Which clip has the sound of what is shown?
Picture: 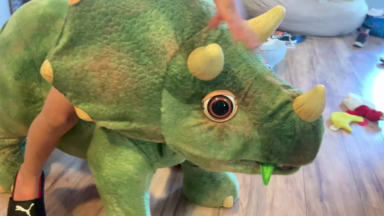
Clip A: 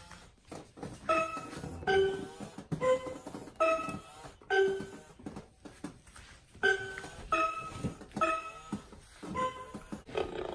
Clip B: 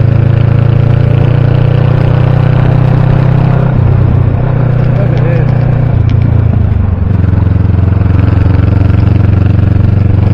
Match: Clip A